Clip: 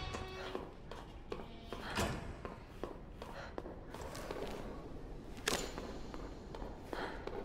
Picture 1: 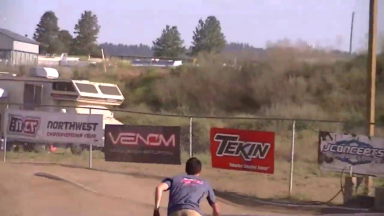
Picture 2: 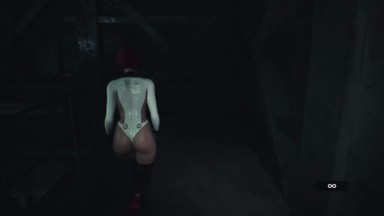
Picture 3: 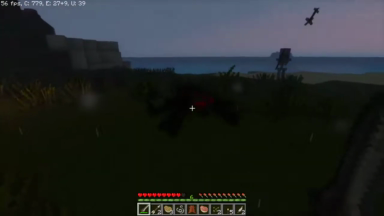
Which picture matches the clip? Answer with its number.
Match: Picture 2